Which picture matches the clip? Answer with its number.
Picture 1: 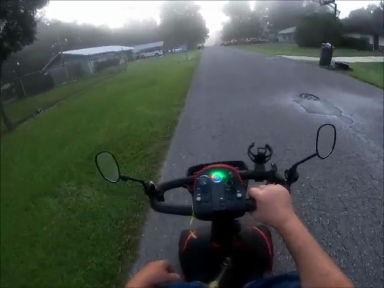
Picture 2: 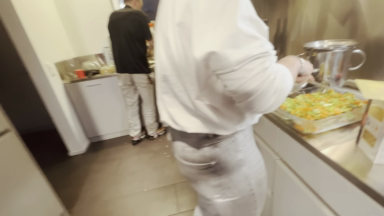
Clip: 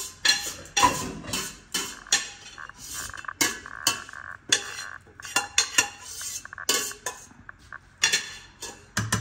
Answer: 2